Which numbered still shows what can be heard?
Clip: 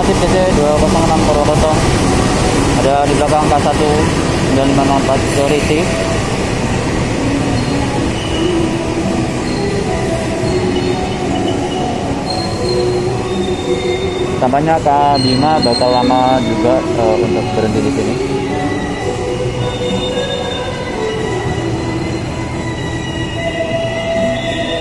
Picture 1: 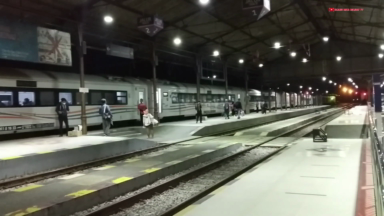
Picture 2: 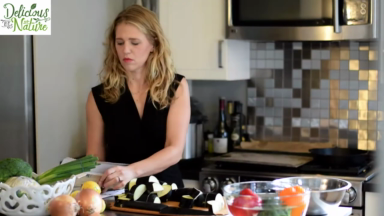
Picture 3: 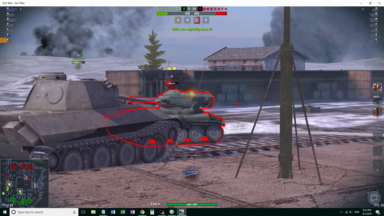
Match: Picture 1